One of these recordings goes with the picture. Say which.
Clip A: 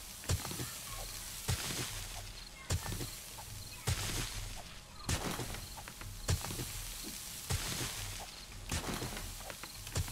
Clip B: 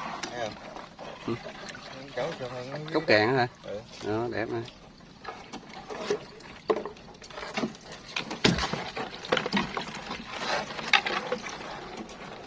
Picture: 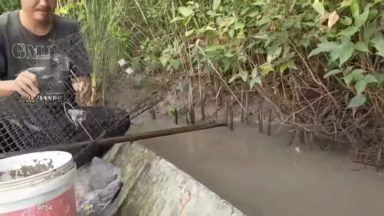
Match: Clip B